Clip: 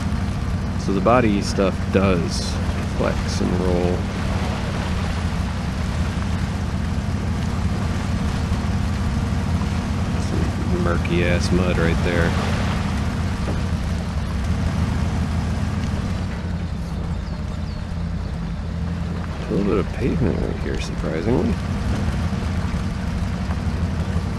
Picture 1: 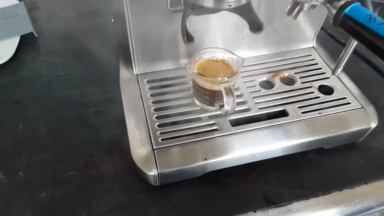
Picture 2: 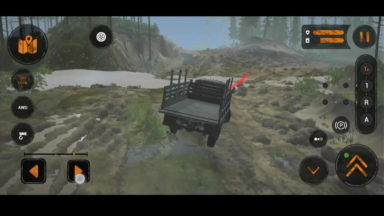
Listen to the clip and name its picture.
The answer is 2